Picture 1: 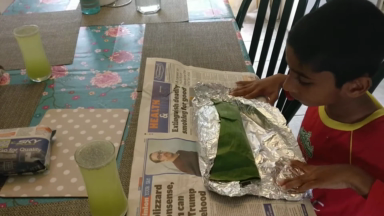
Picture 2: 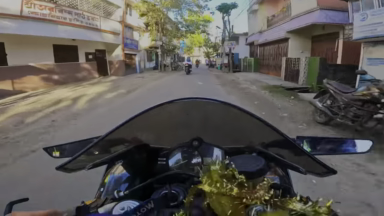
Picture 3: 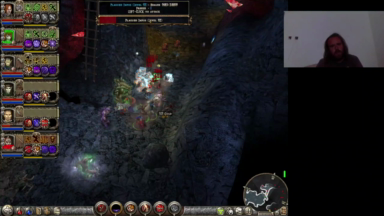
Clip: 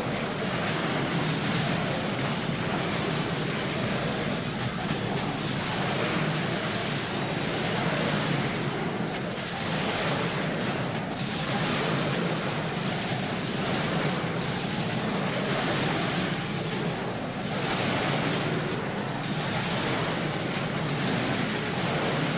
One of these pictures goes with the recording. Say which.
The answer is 3